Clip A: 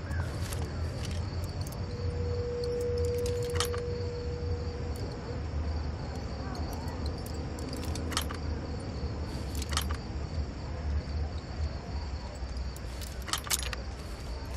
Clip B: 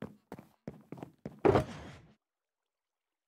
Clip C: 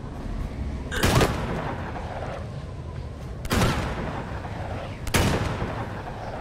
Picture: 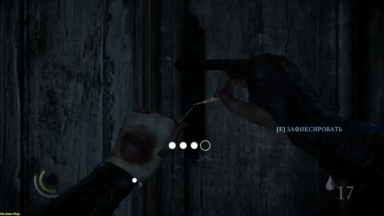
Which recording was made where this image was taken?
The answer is A